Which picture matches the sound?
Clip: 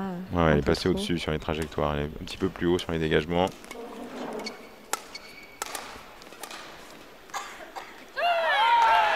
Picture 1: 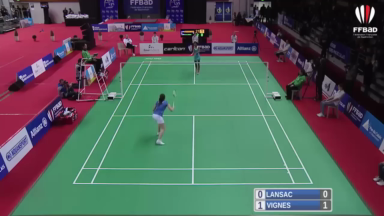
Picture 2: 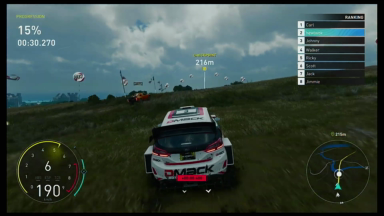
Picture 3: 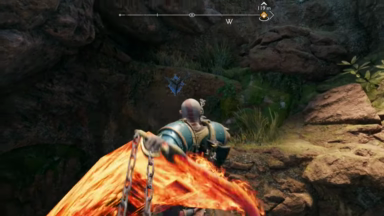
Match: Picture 1